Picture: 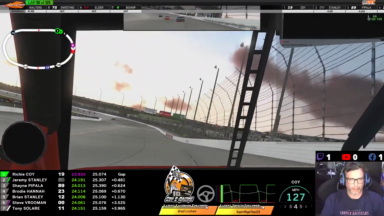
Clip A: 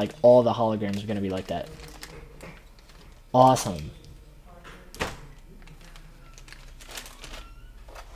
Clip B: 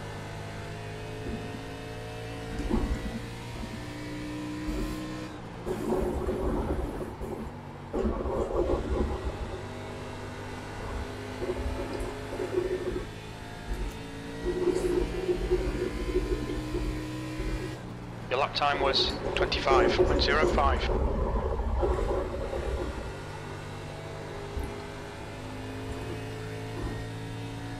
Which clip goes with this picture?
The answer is B